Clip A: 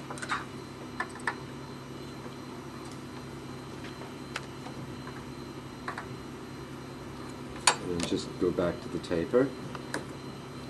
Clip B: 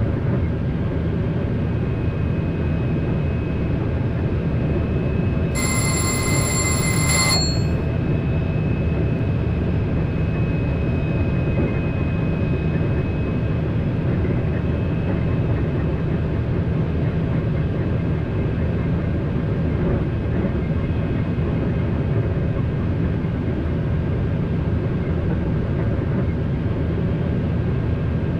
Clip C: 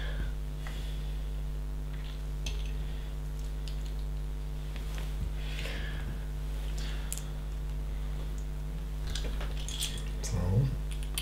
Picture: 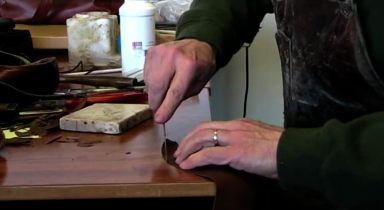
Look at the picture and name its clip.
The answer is A